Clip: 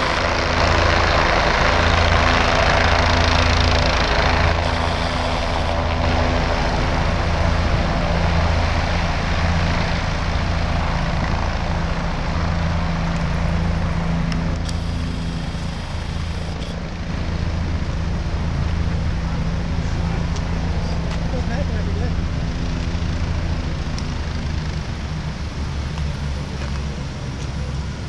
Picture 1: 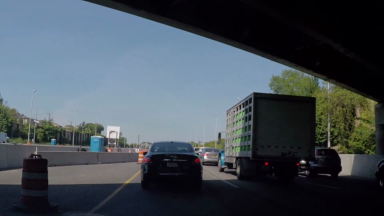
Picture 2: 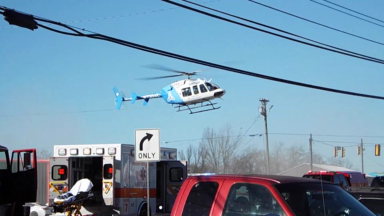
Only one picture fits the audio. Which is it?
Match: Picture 2